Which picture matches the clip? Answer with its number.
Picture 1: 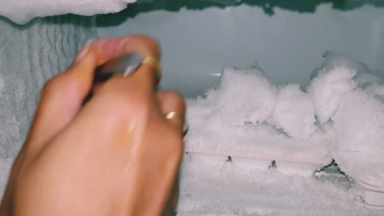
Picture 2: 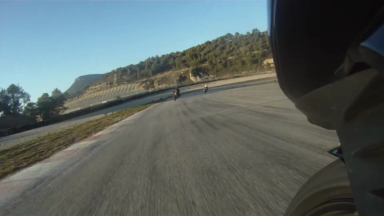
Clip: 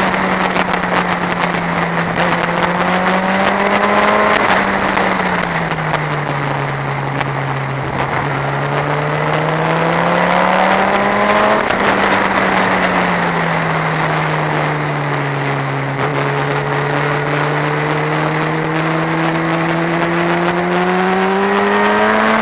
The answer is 2